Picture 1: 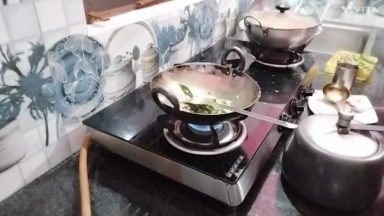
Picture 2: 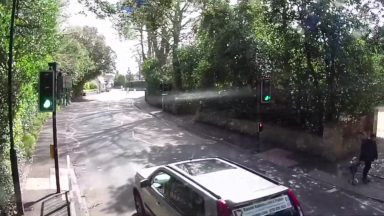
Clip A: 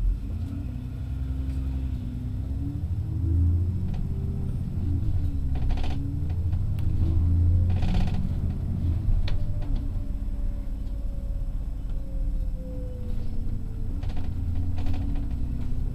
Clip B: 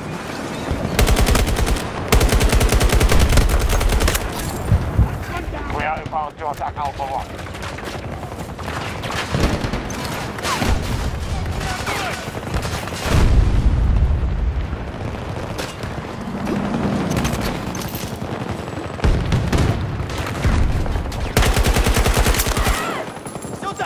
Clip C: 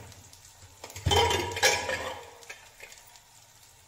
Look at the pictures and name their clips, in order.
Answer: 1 C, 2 A